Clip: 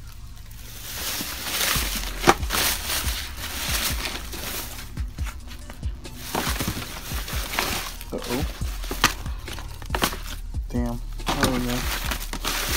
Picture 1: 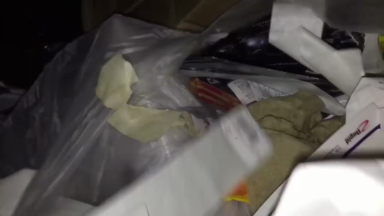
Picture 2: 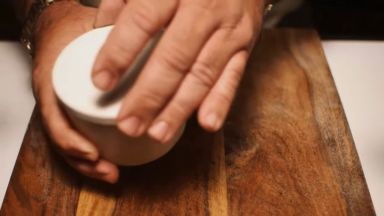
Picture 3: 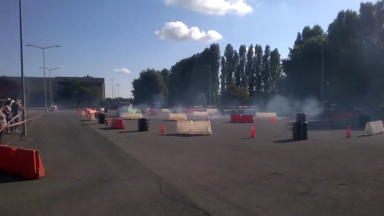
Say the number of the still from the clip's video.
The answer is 1